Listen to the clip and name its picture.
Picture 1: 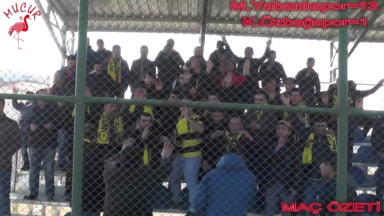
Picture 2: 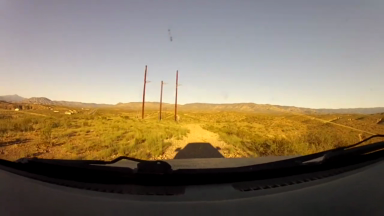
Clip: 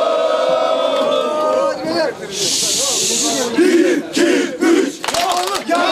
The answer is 1